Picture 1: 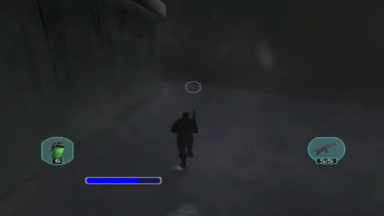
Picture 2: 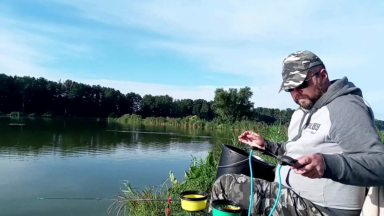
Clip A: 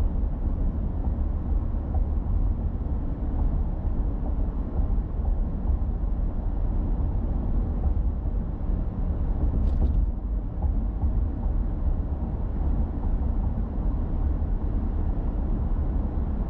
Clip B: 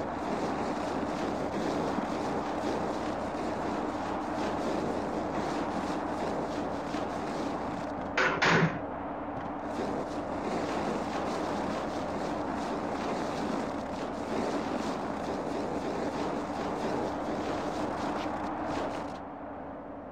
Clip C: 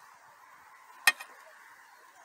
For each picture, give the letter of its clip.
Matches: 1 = B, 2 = C